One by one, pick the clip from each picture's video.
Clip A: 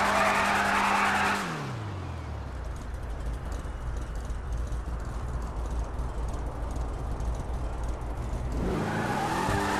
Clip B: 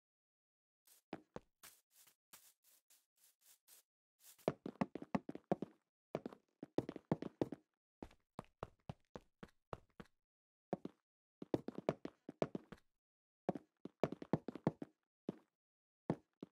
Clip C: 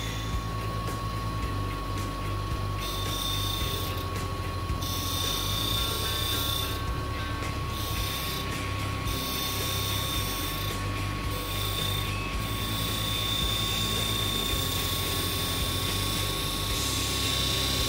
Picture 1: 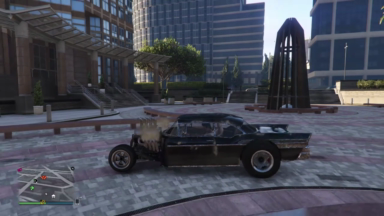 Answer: A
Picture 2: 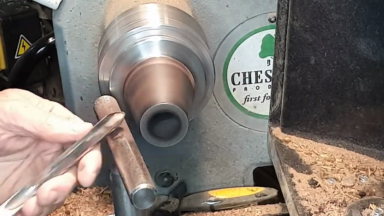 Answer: C